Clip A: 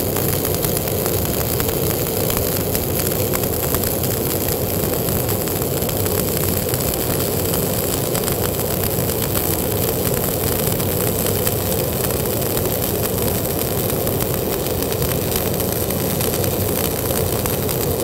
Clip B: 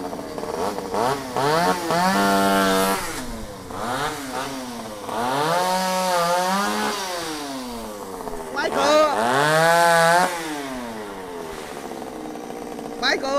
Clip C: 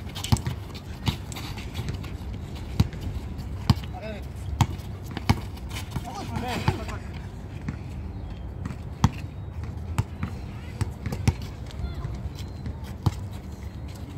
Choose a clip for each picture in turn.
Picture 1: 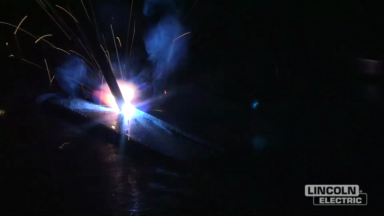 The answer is A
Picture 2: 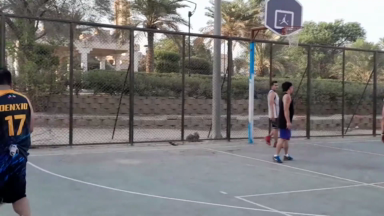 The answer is C